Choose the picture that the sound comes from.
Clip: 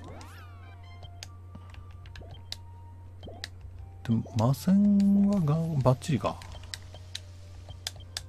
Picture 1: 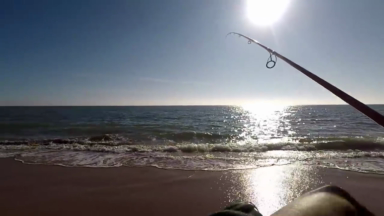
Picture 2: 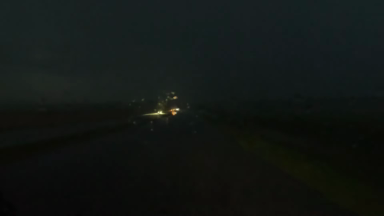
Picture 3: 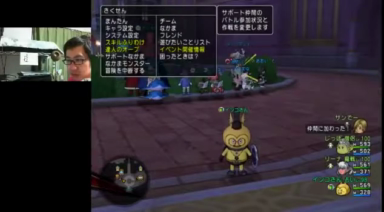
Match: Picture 3